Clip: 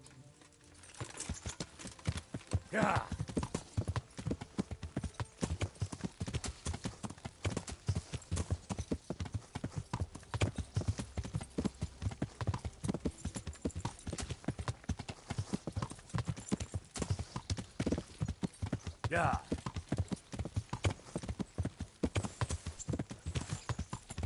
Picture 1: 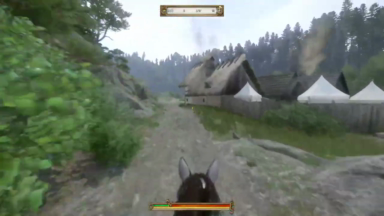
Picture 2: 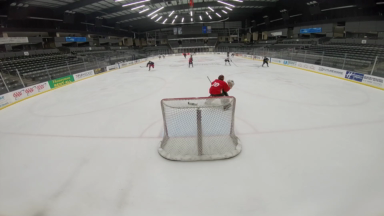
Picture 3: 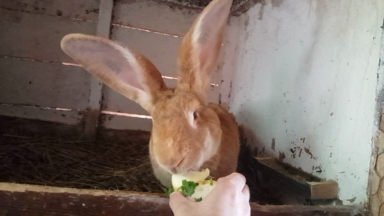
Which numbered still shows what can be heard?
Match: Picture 1